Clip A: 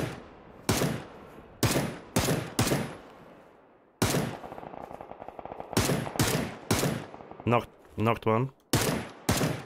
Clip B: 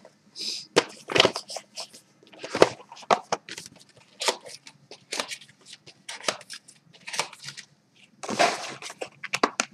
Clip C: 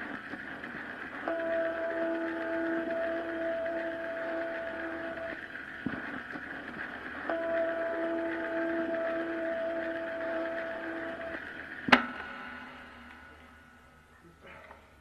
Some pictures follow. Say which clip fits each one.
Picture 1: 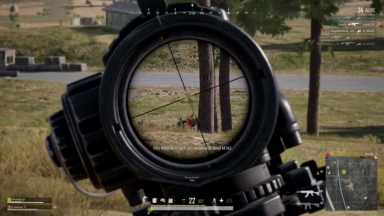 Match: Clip A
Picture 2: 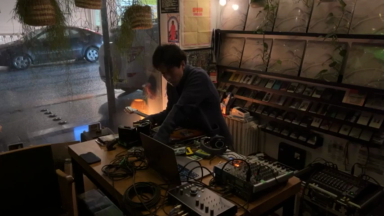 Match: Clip C